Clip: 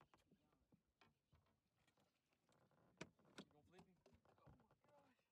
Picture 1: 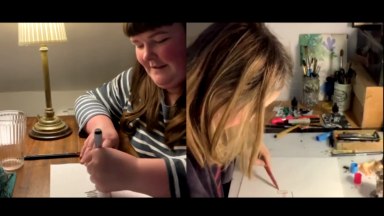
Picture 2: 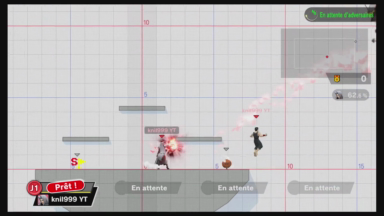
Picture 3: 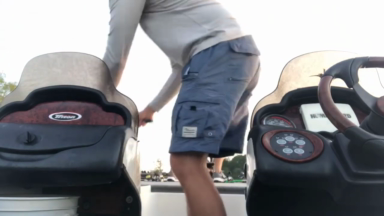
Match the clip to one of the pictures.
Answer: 3